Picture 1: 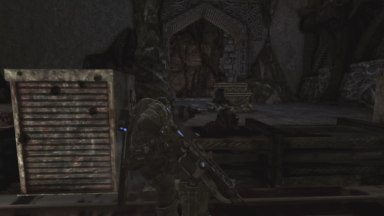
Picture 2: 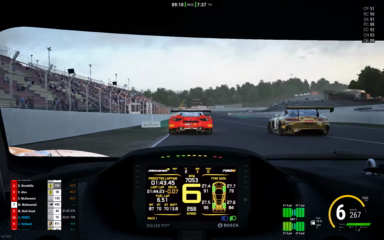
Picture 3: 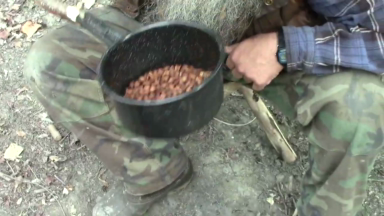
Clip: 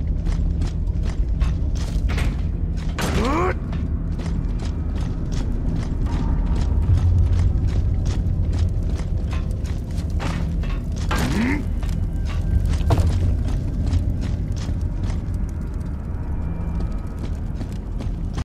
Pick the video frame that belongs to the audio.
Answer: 1